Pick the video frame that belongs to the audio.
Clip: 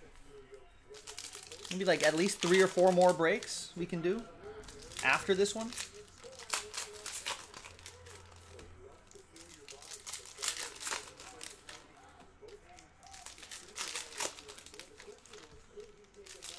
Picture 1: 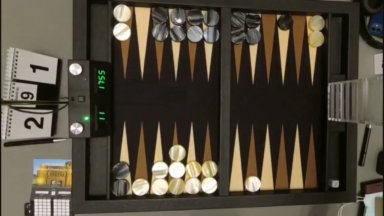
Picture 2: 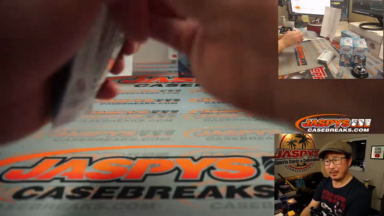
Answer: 2